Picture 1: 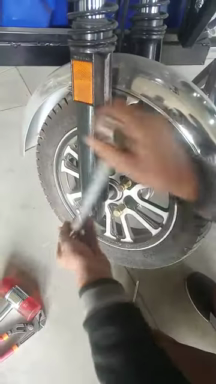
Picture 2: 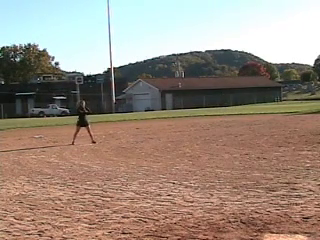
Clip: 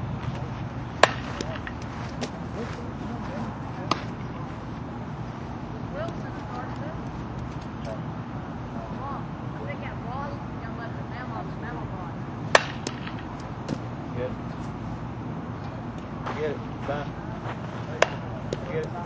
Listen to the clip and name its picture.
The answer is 2